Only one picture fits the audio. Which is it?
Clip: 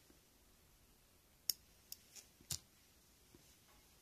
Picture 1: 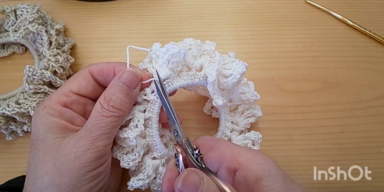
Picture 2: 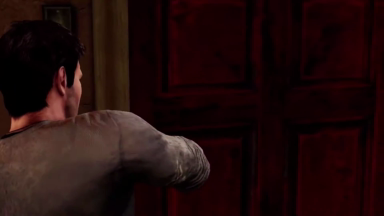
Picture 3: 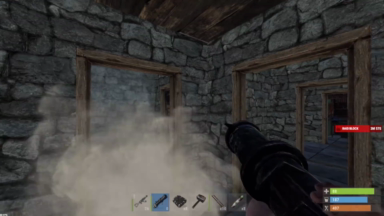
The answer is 1